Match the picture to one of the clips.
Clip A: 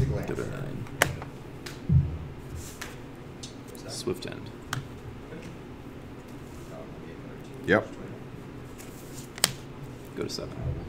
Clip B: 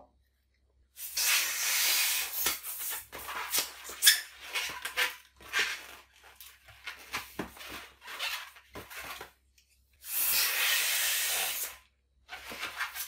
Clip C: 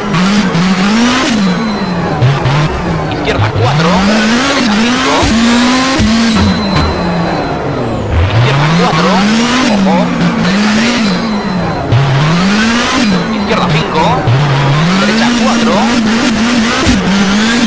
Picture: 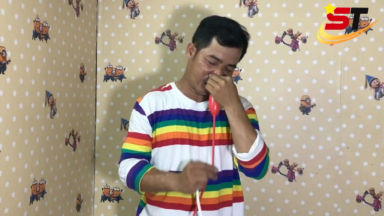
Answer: B